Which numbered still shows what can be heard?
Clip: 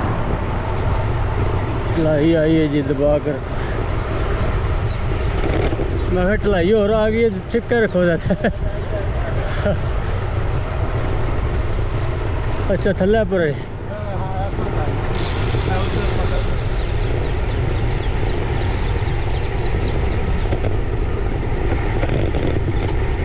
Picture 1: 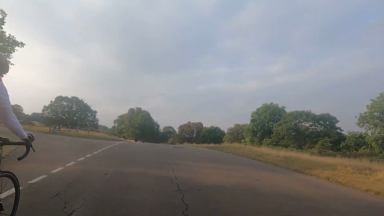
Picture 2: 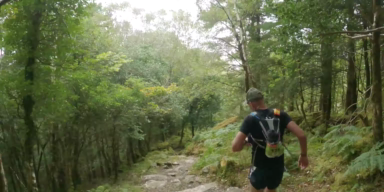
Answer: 1